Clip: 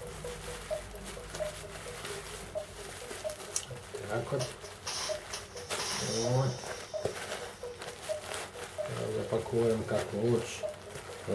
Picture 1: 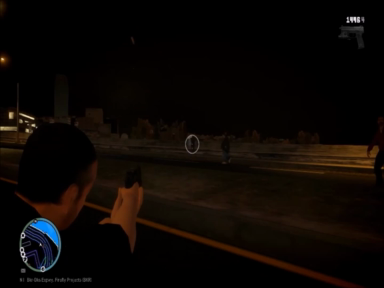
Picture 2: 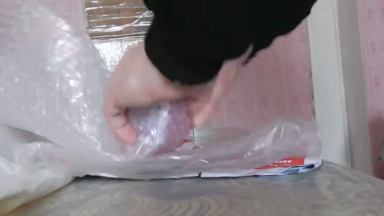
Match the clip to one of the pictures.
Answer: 2